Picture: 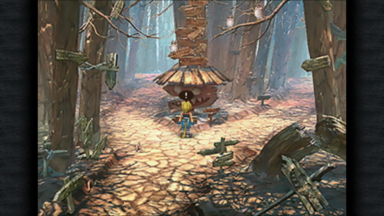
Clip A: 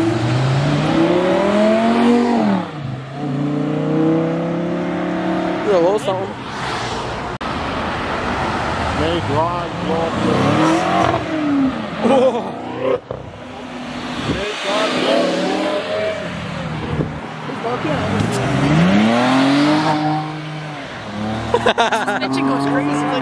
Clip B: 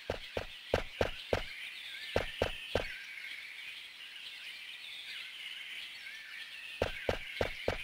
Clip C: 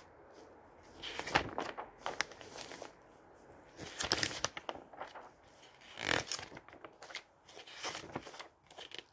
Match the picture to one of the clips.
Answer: B